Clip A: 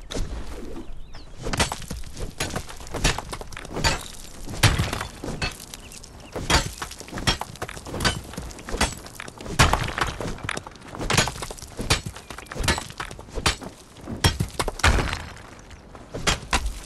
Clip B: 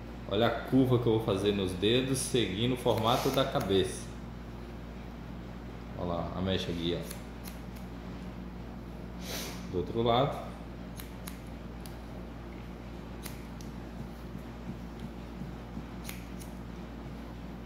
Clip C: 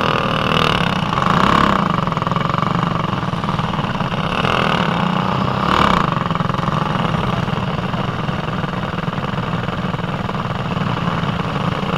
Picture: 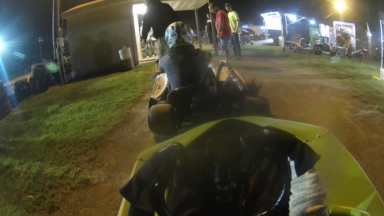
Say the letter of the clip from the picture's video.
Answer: C